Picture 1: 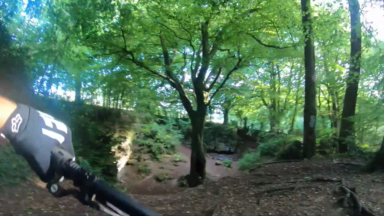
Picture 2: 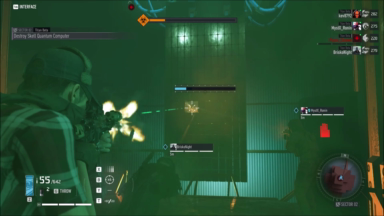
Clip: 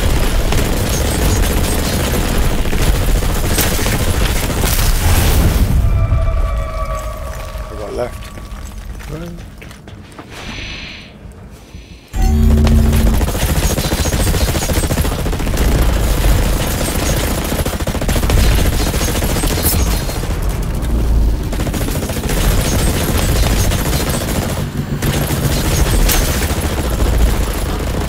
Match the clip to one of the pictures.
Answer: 2